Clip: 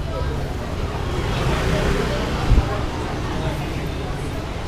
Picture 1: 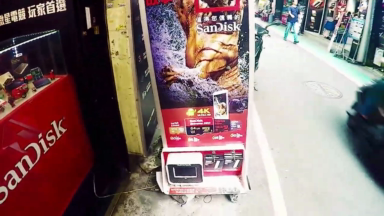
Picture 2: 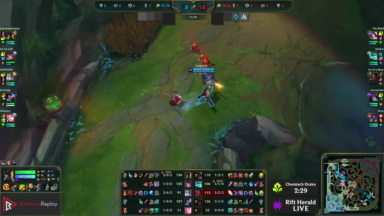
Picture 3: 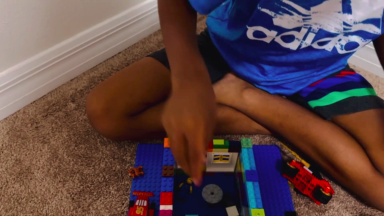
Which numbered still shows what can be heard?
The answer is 1